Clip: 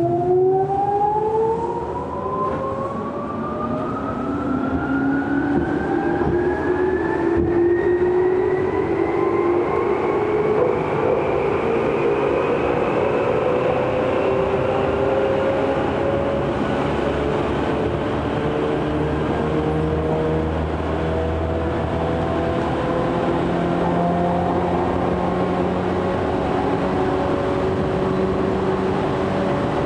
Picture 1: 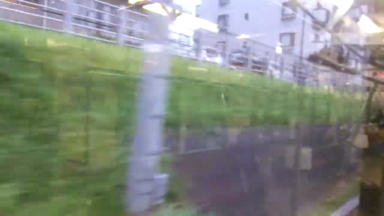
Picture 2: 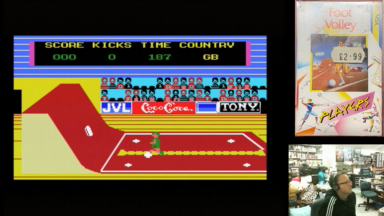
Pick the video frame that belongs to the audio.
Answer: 1